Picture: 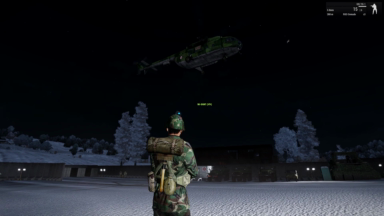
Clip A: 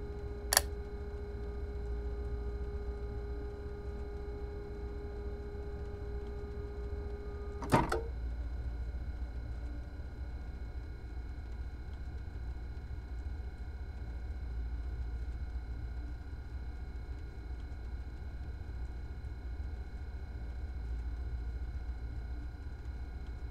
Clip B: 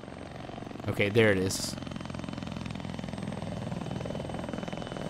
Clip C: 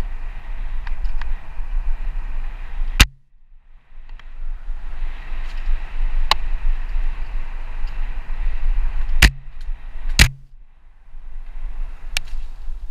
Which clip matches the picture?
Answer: B